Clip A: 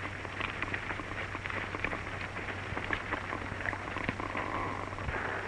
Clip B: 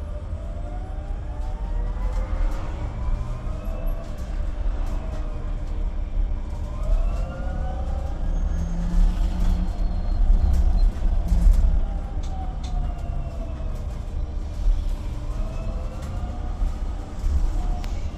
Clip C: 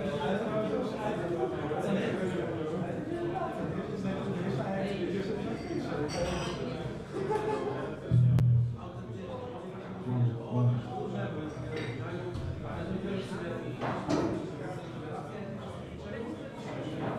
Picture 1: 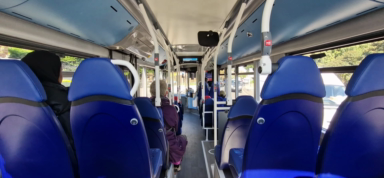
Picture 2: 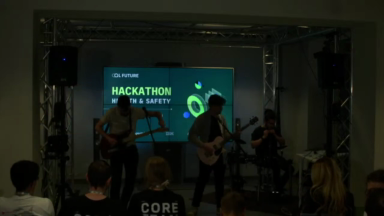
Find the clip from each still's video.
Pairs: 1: B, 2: C